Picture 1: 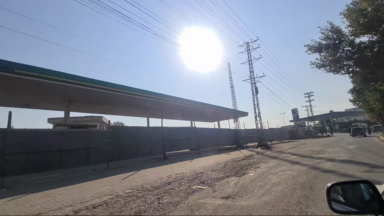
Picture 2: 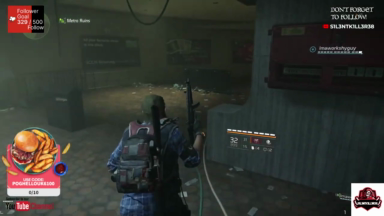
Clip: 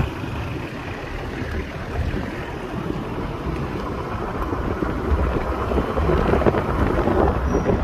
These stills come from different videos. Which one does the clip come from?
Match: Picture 1